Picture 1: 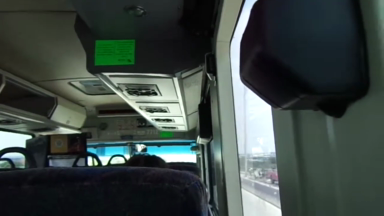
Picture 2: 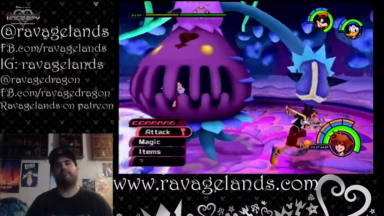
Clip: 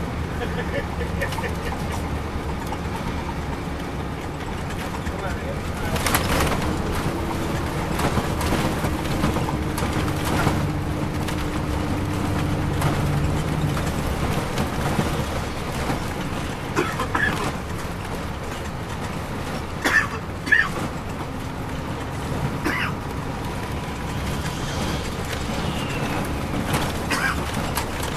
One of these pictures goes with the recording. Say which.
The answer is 1